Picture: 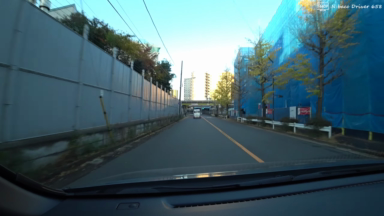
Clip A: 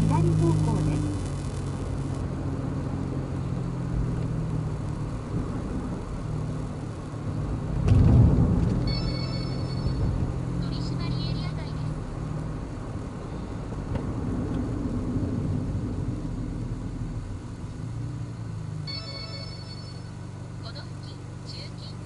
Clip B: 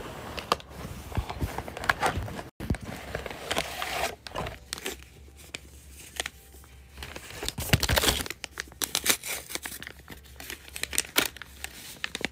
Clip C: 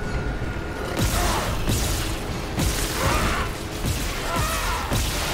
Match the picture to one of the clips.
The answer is A